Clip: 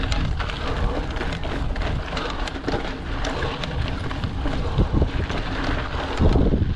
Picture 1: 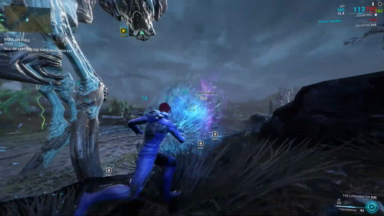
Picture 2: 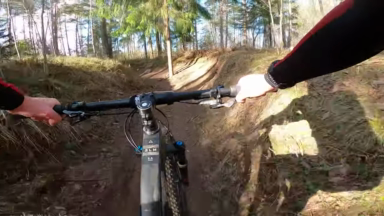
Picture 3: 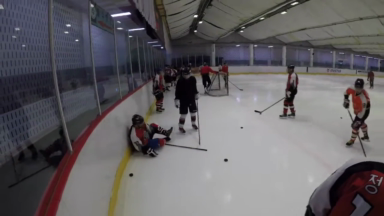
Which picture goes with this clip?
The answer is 2